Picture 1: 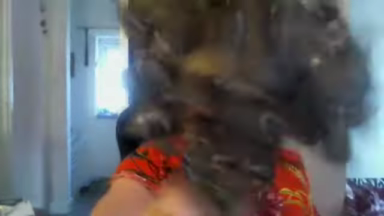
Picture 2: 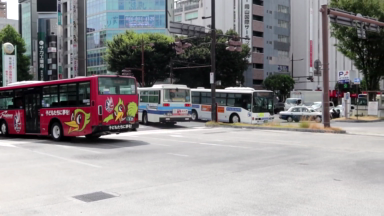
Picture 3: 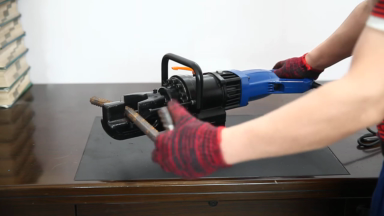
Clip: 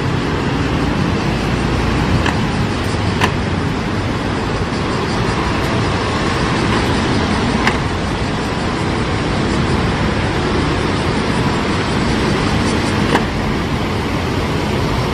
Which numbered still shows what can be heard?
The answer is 2